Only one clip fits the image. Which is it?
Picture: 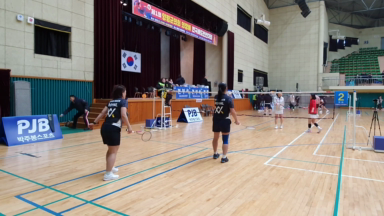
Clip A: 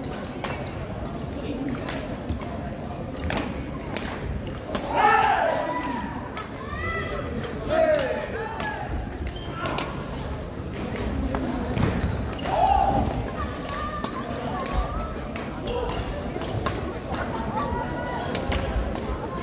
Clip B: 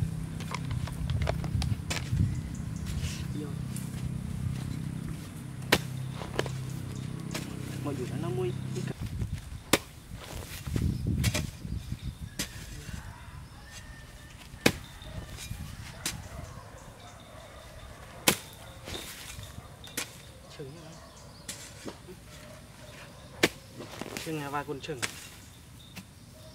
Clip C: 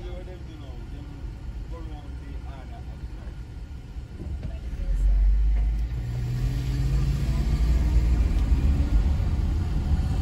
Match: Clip A